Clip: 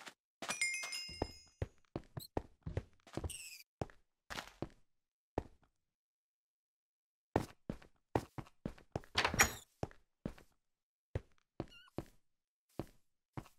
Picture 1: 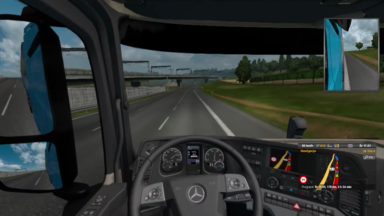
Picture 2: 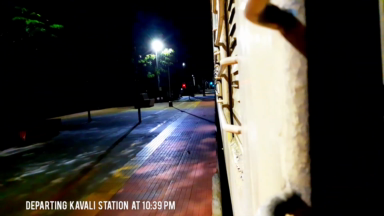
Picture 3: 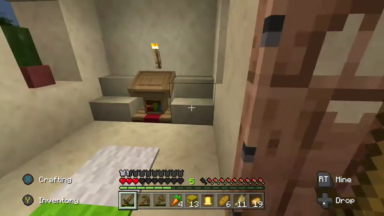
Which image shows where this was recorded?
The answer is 3